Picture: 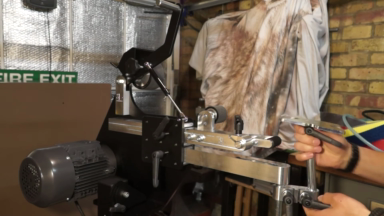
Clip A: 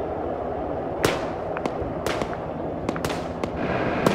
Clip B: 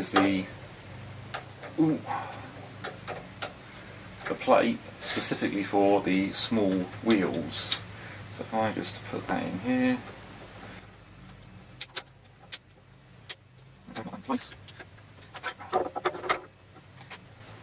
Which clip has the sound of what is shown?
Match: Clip B